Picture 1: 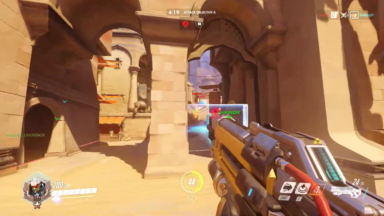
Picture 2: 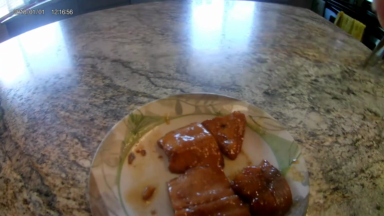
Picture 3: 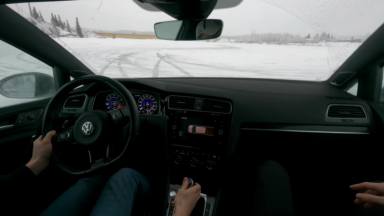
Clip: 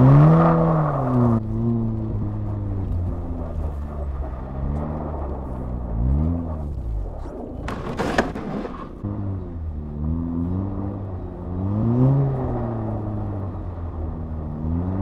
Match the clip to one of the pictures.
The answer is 3